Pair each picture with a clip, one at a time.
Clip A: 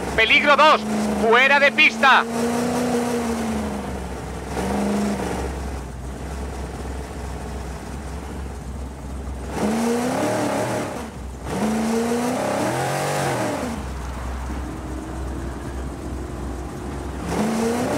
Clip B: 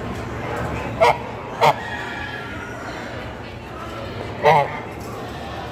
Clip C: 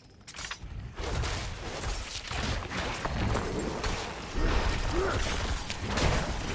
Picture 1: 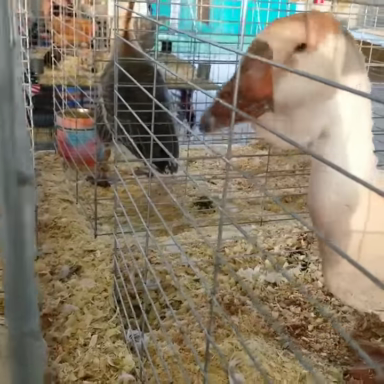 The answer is B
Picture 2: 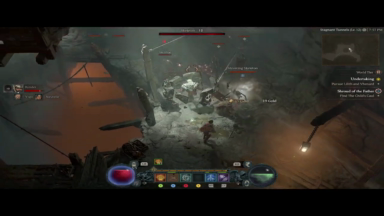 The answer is C